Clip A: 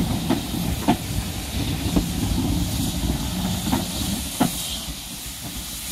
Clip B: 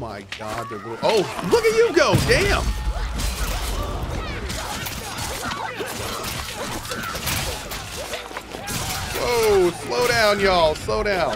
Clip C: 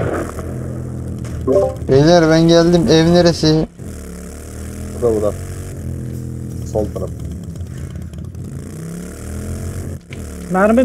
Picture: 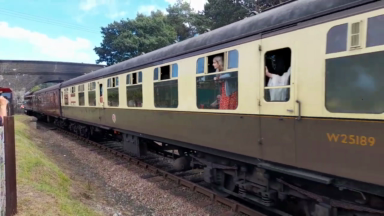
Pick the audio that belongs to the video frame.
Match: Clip A